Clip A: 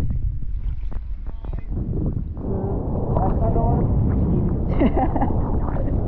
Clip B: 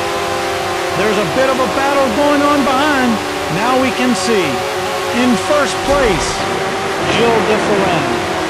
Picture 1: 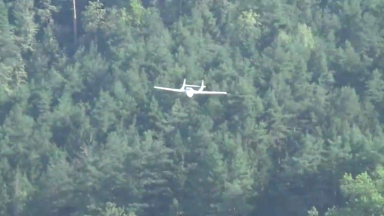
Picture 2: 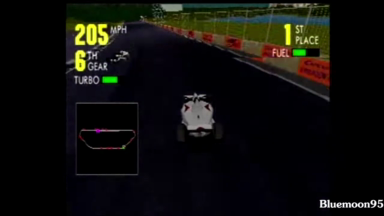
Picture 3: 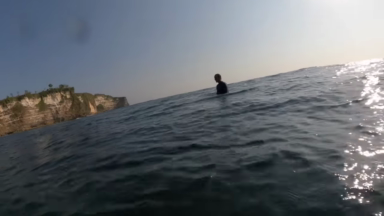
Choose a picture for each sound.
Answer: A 3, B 2